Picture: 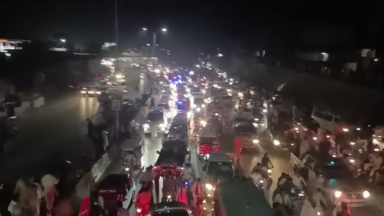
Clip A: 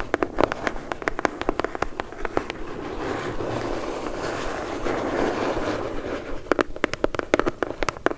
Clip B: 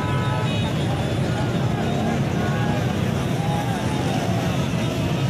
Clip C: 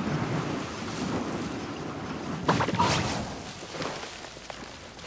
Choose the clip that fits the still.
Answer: B